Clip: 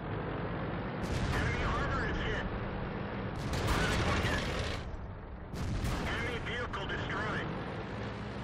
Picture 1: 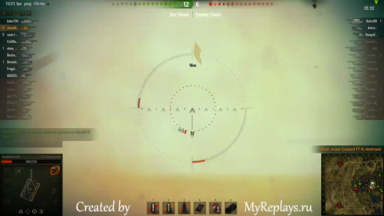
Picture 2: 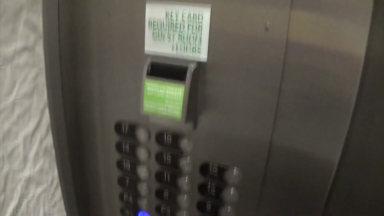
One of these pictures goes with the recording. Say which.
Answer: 1